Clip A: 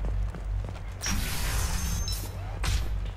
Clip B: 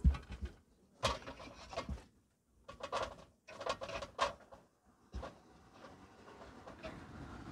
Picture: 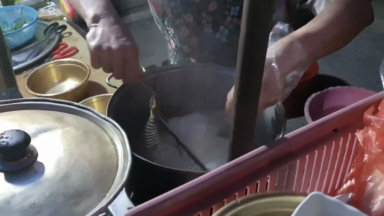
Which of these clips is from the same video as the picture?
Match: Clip B